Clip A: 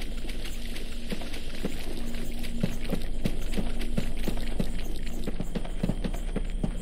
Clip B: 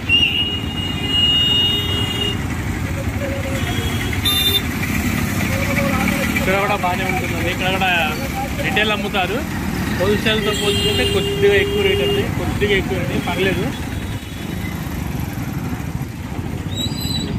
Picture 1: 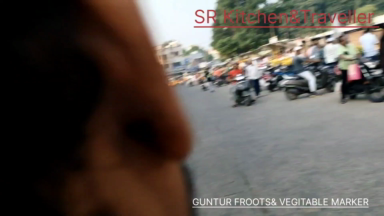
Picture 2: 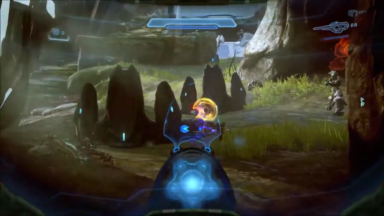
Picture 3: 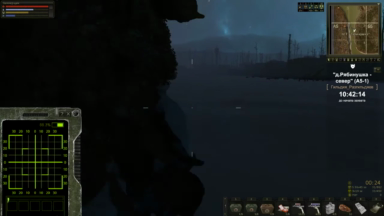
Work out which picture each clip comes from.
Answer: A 3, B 1